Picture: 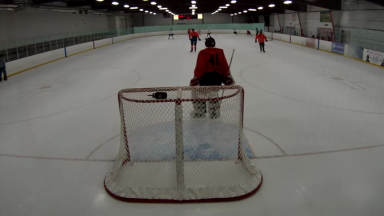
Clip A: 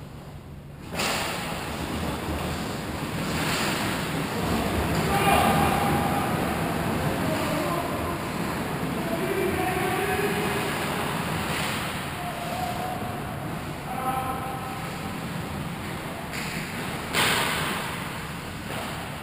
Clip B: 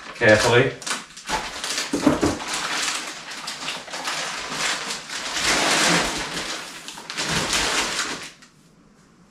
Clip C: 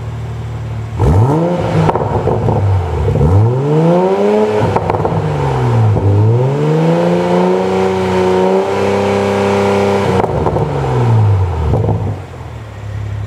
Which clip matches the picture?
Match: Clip A